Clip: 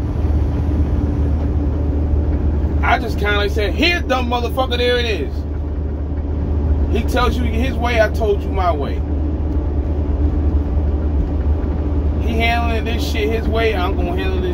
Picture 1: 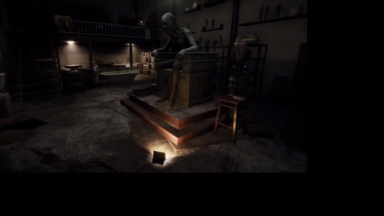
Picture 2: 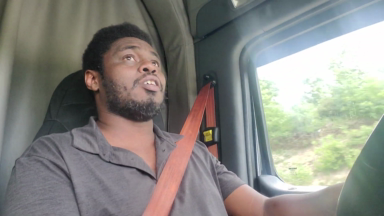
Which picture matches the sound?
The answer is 2